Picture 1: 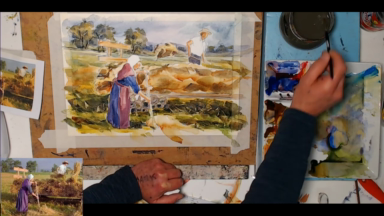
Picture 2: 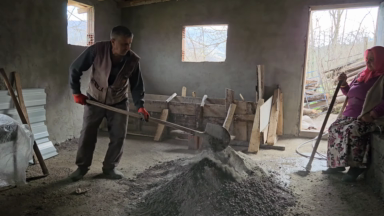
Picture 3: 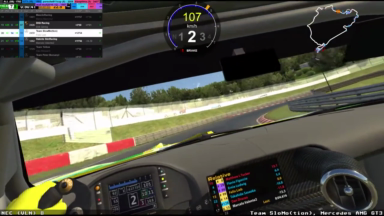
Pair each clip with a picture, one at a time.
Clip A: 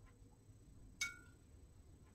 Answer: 1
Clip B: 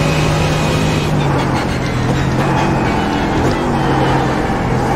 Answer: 3